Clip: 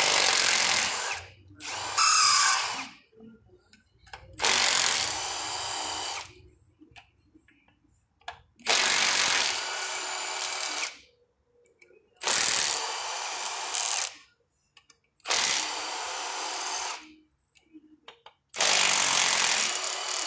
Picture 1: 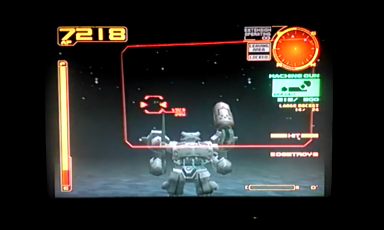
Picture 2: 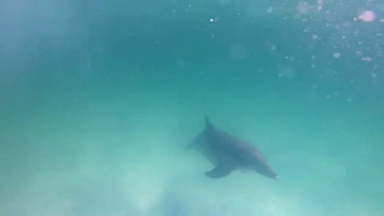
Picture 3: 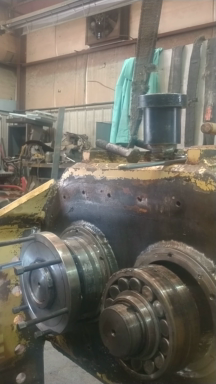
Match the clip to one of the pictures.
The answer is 3